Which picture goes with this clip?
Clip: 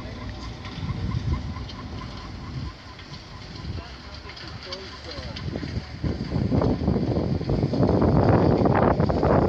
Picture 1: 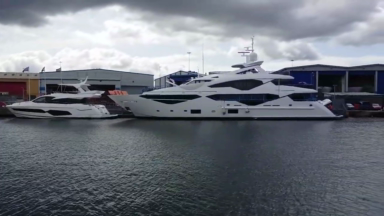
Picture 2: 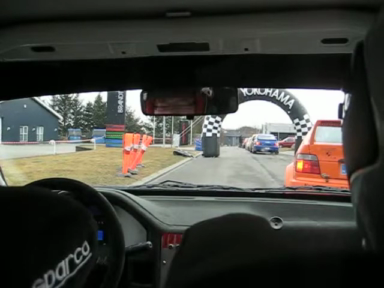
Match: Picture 1